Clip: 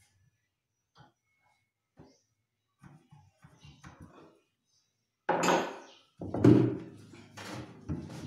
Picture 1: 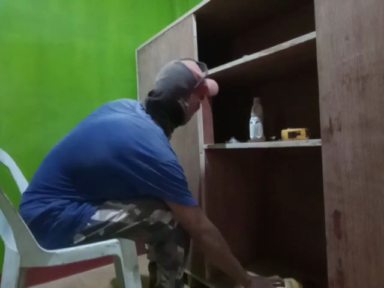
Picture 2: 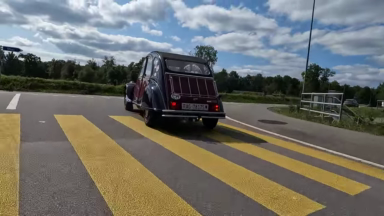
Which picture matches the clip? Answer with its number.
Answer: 1